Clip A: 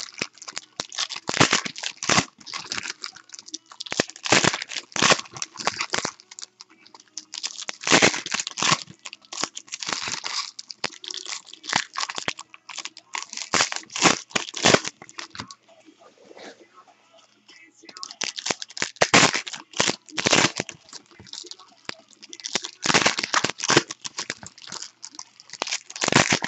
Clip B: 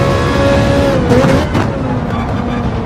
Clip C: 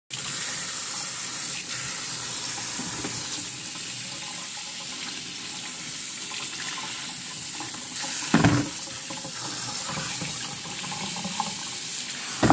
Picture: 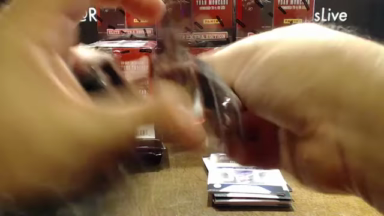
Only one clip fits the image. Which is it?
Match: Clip A